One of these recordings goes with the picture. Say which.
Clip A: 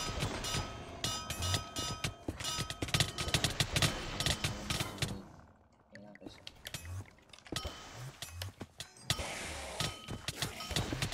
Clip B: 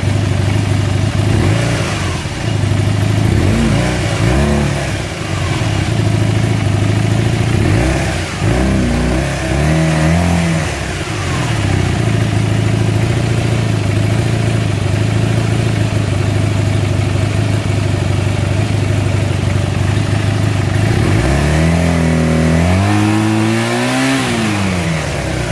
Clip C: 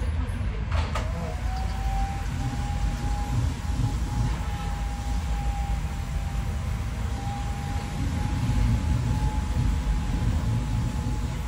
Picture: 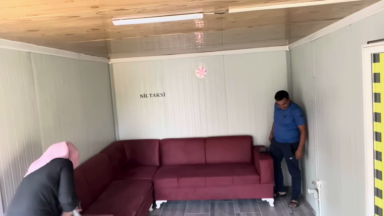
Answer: C